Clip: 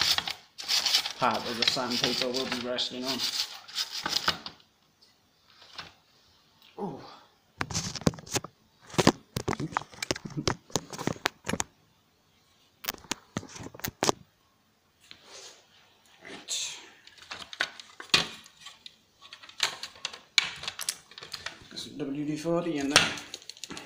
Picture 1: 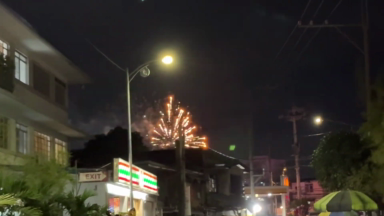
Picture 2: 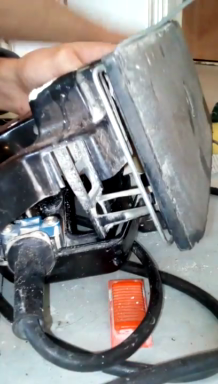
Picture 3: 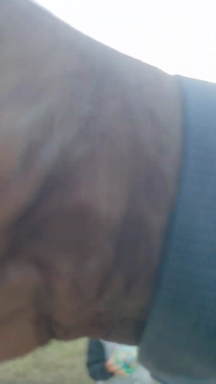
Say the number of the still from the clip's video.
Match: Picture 2